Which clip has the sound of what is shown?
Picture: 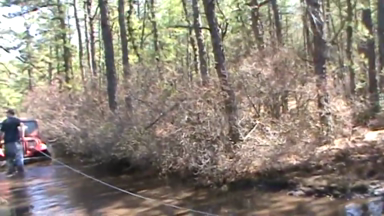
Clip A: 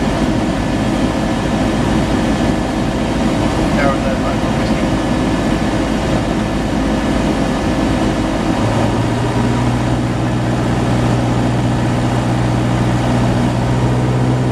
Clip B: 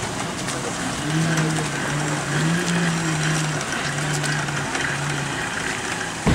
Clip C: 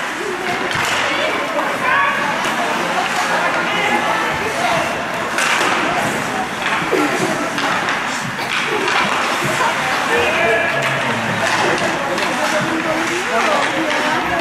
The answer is B